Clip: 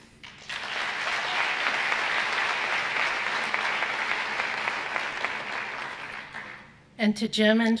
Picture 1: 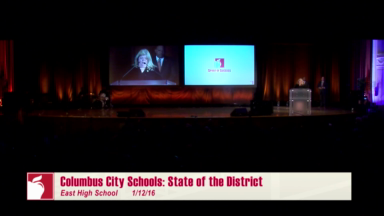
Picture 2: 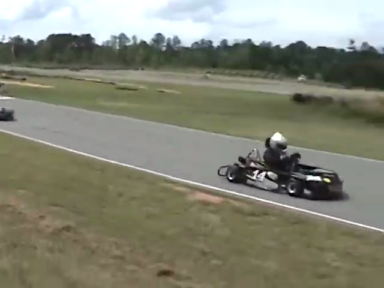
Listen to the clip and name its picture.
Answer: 1